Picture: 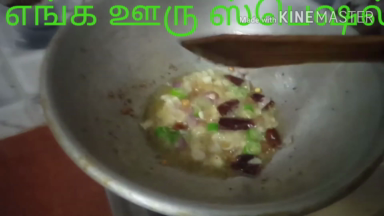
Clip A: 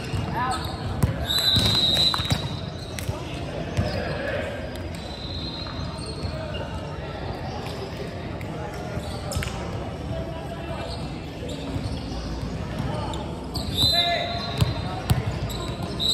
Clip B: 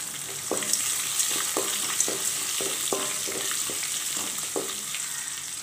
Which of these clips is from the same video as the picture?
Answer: B